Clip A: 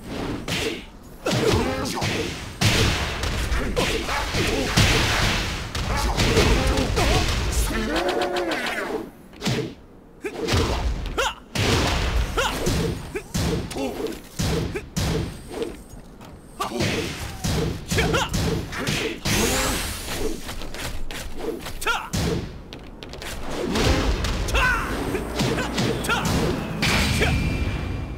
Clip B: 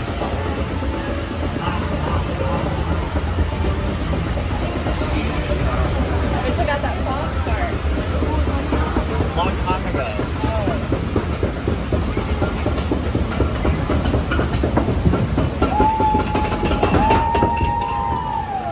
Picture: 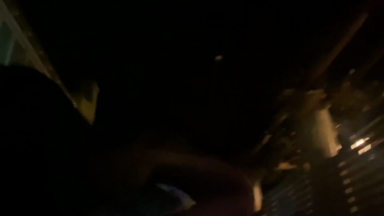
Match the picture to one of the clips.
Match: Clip B